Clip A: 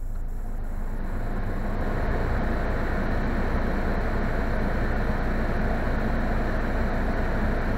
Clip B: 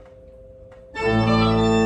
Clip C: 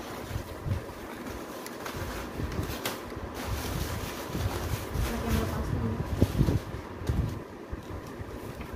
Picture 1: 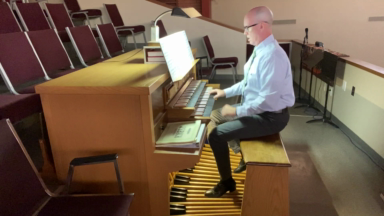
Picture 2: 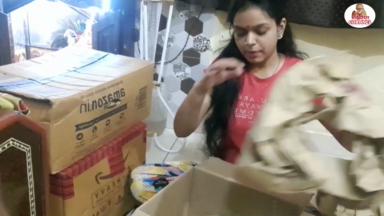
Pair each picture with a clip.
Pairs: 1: B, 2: C